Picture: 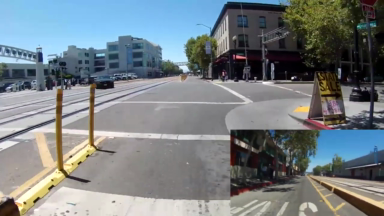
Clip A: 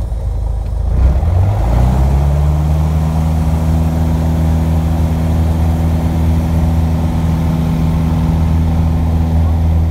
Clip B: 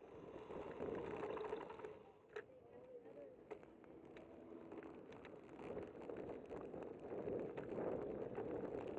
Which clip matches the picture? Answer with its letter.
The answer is B